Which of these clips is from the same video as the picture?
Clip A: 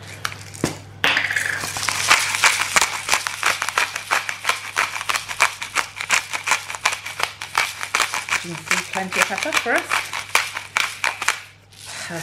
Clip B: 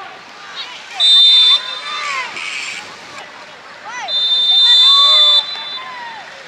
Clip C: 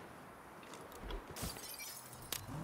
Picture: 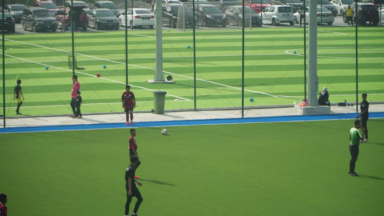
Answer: B